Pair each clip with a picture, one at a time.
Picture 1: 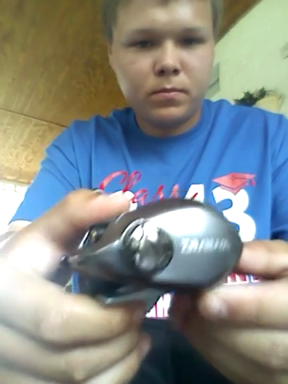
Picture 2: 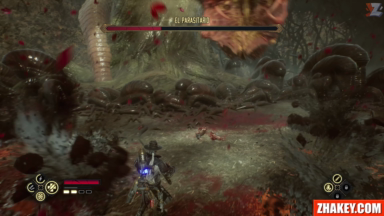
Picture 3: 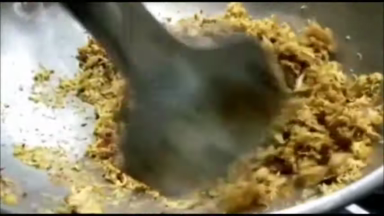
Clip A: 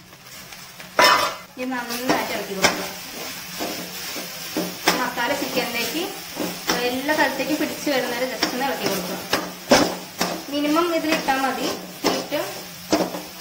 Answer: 3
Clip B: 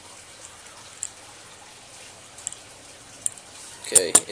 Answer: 1